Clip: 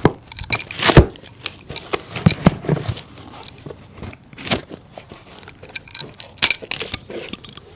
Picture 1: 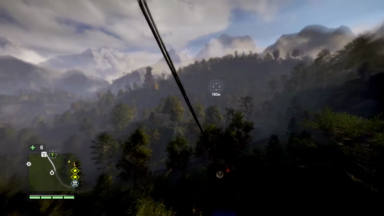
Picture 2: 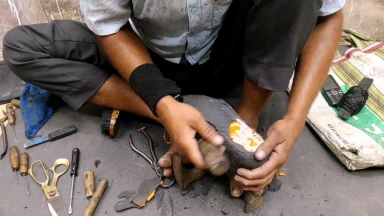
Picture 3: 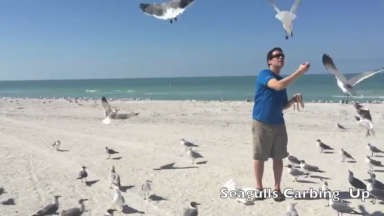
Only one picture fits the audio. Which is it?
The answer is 2